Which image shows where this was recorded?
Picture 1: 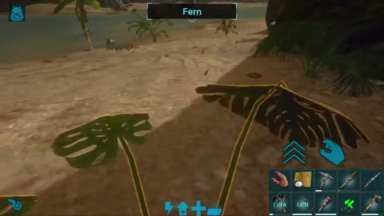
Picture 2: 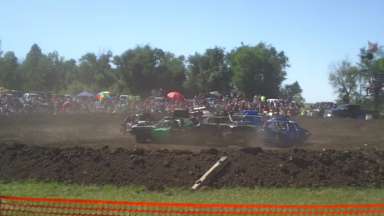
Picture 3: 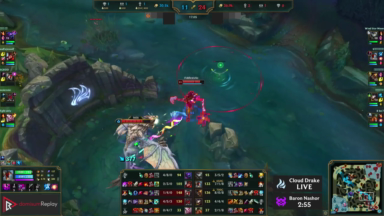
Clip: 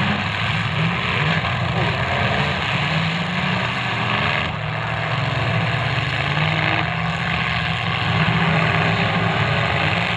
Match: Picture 2